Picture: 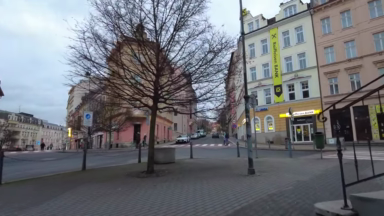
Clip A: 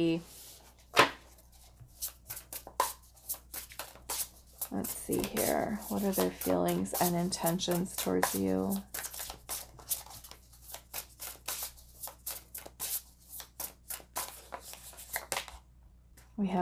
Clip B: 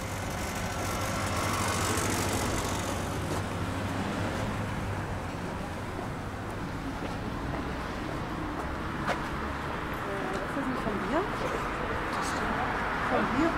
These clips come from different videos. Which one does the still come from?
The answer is B